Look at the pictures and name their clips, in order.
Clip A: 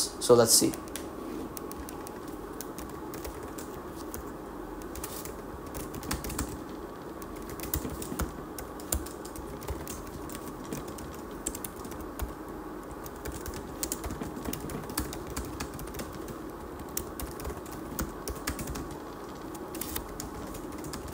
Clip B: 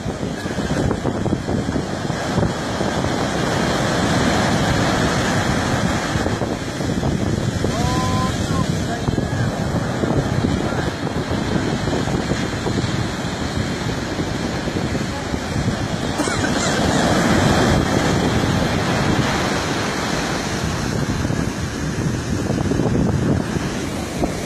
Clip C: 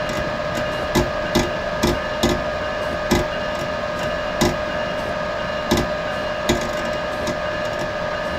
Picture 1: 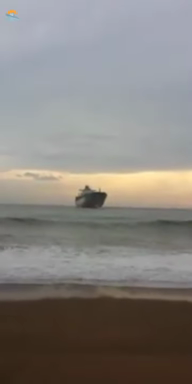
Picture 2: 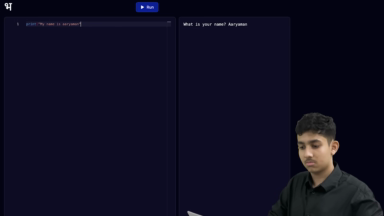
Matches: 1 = B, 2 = A